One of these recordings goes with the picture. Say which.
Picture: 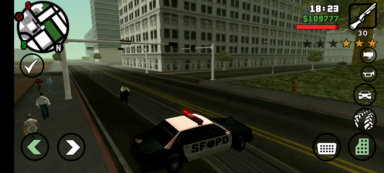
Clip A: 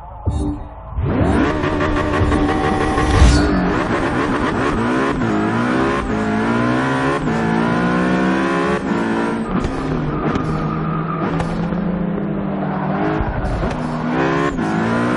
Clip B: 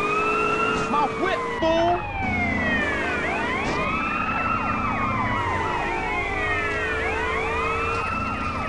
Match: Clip B